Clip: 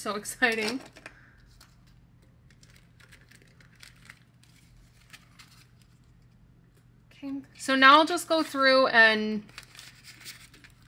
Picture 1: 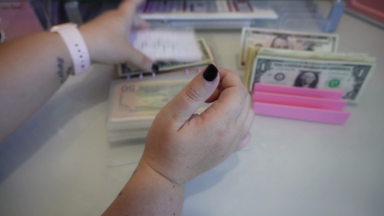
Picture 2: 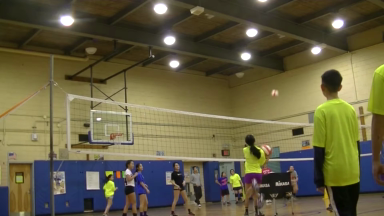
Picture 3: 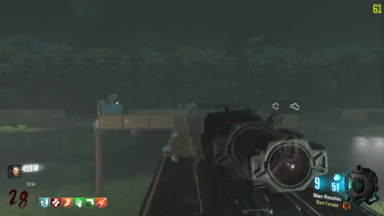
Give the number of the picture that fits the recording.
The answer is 1